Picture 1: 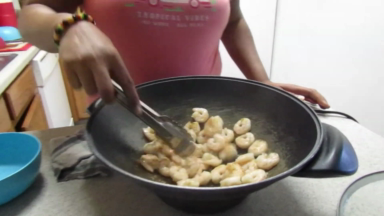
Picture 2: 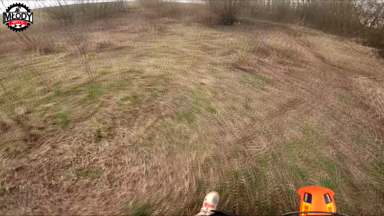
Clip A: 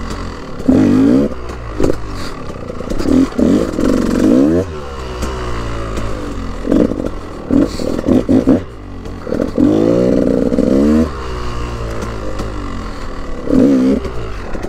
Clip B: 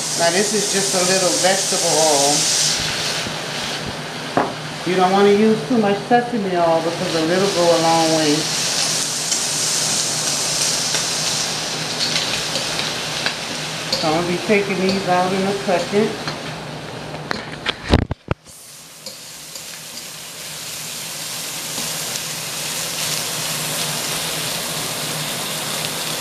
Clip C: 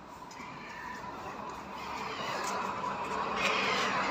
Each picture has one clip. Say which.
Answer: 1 B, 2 A